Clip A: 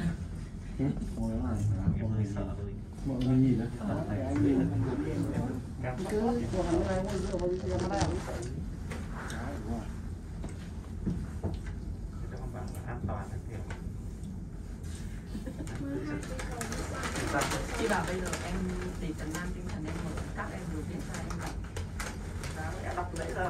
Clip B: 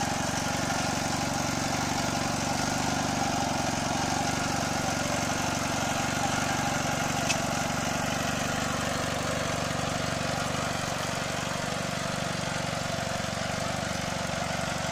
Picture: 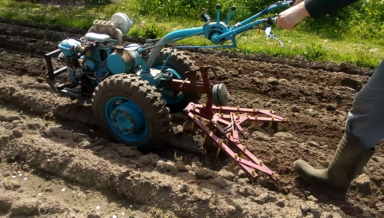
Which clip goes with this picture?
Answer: B